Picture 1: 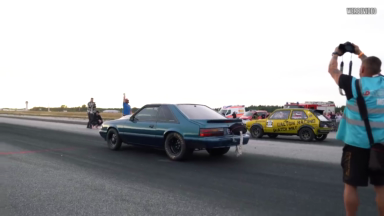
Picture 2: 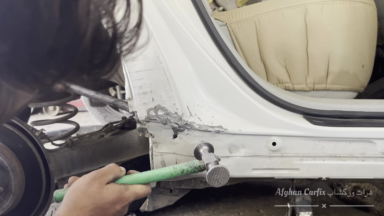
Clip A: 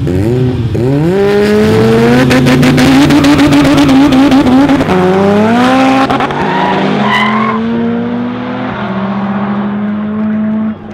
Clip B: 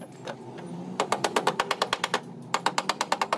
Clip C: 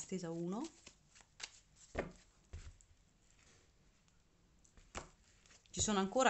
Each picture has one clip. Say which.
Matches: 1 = A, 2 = B